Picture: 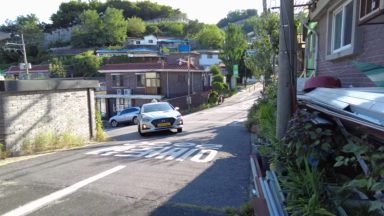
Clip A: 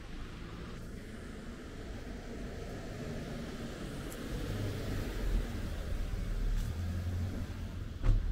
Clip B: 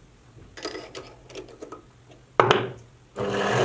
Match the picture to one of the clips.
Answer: A